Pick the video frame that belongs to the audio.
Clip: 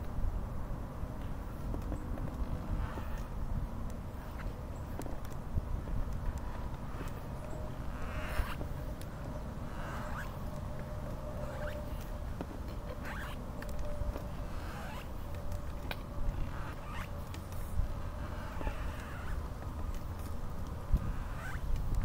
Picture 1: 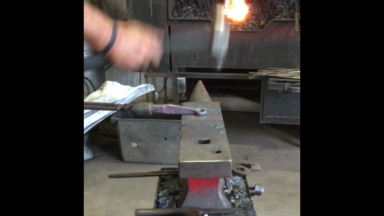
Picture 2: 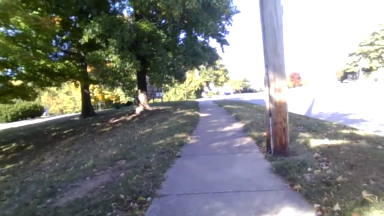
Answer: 2